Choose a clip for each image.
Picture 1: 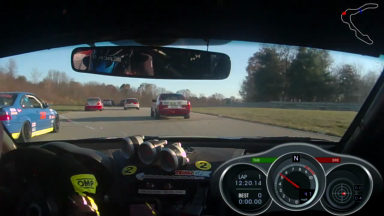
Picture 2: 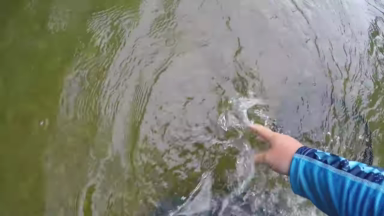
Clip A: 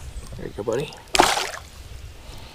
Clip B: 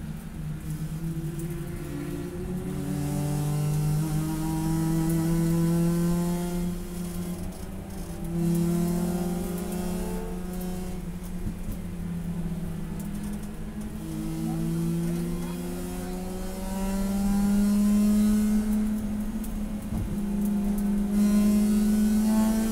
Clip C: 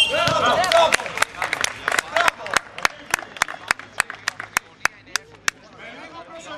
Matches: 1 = B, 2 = A